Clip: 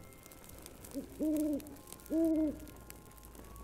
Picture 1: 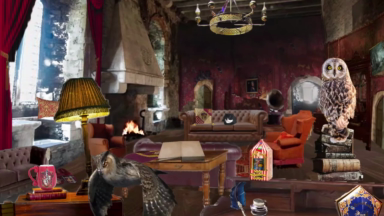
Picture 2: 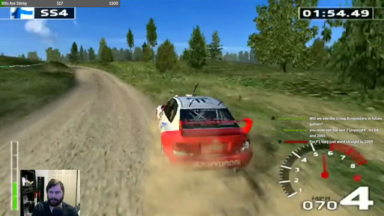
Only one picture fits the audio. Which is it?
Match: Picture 1